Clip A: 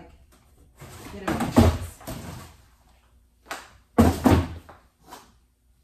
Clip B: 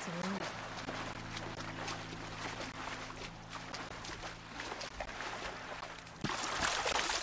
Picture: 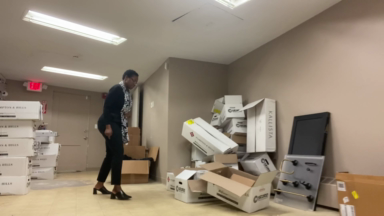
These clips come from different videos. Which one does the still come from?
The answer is A